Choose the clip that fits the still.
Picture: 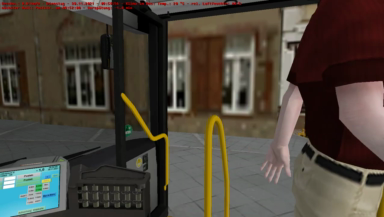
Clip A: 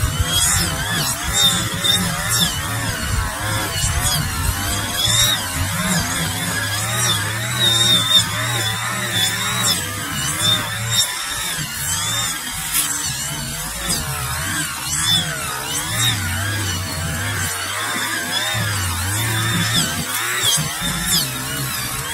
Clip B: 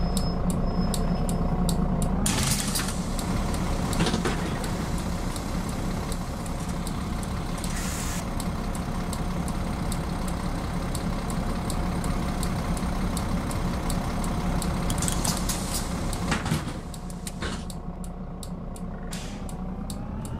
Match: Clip B